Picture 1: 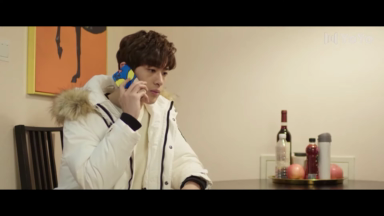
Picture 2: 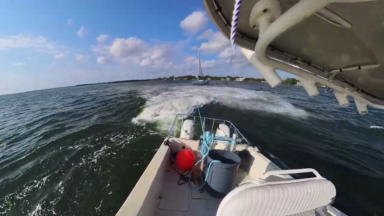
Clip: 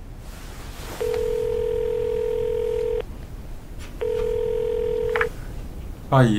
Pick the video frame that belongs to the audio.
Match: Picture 1